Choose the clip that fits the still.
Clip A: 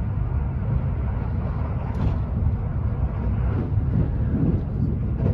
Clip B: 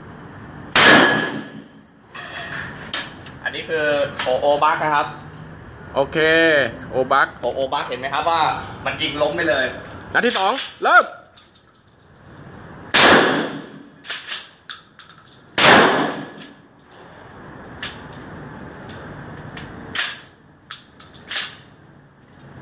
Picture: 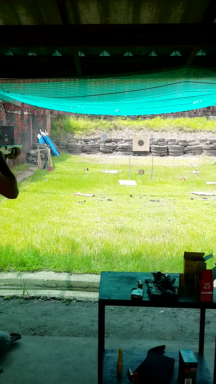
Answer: B